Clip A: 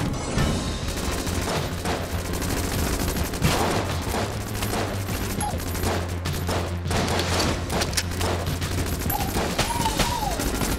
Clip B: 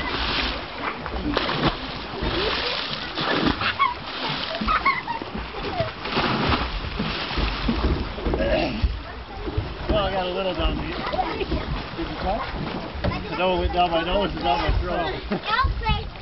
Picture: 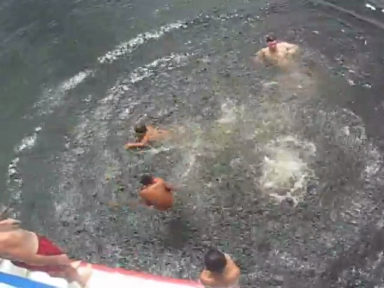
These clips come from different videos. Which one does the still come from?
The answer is B